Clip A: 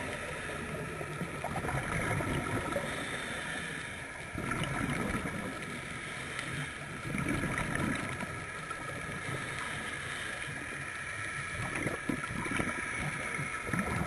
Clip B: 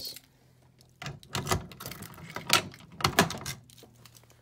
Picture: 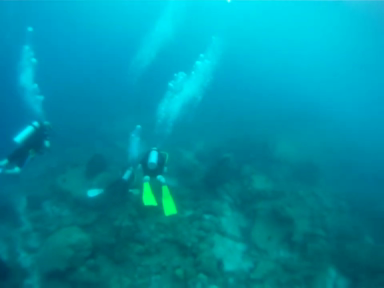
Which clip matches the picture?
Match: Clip A